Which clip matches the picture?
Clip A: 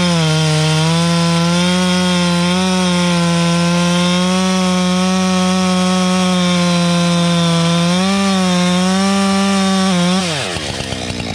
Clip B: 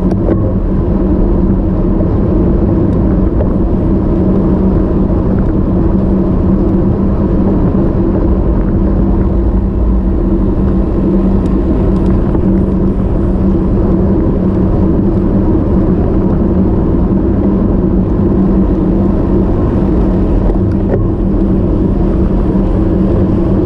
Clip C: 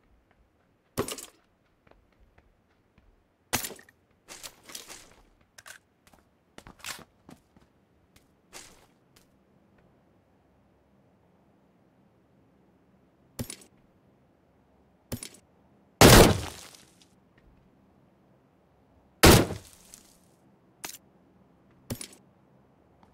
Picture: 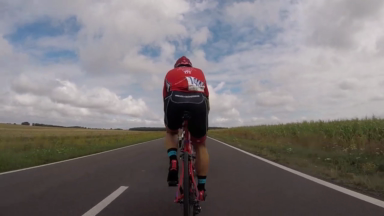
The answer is B